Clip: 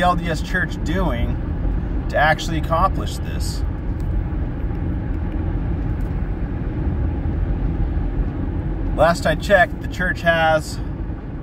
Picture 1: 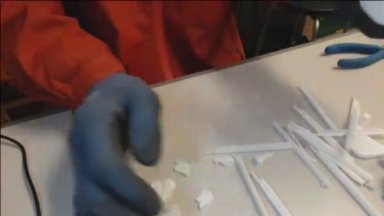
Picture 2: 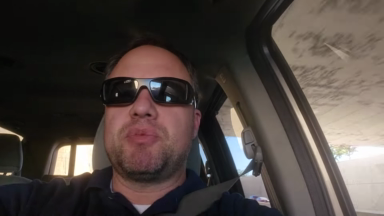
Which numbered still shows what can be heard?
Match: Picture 2